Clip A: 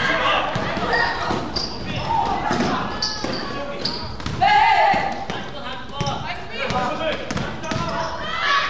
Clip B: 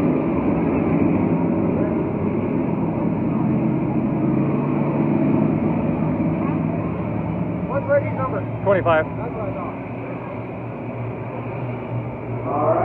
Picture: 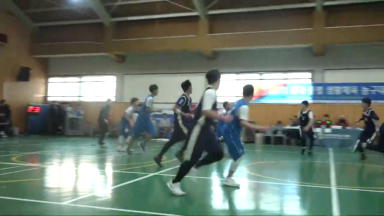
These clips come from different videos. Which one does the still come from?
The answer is A